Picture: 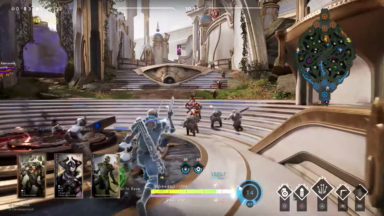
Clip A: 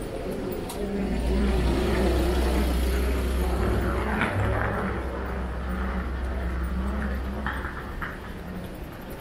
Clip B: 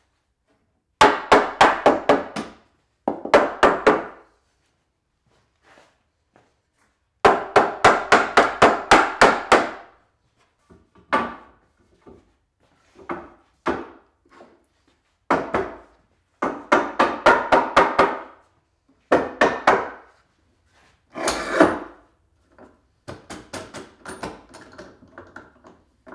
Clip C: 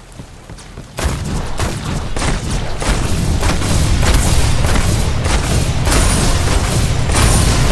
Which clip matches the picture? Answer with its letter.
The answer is C